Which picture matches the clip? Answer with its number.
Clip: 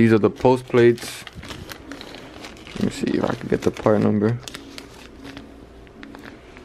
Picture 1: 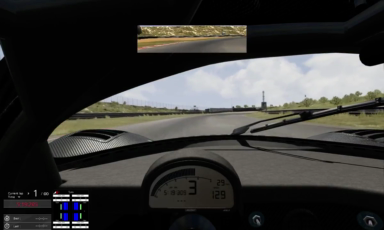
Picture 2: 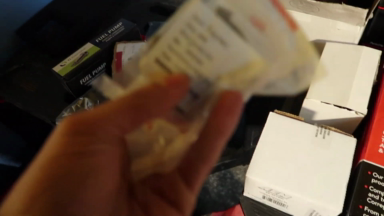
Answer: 2